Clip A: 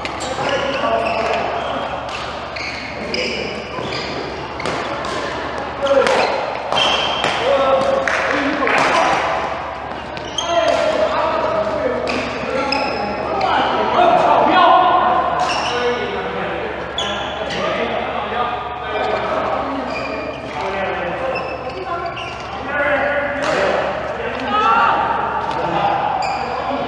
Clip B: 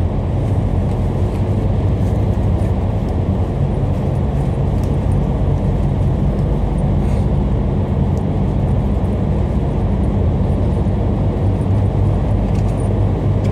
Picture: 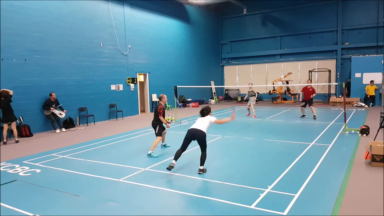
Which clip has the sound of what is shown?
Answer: A